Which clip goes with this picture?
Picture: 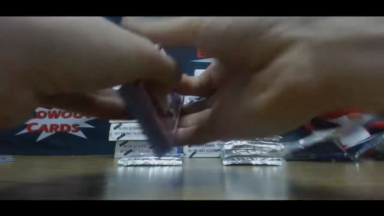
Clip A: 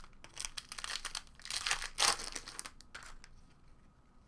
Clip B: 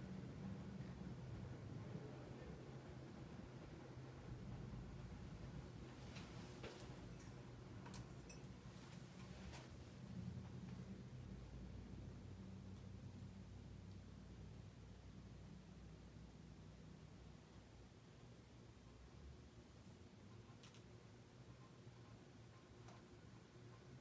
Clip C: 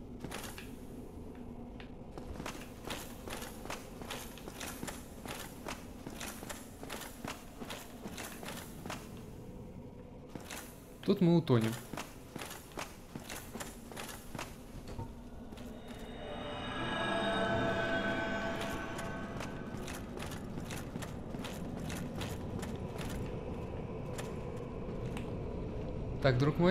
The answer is A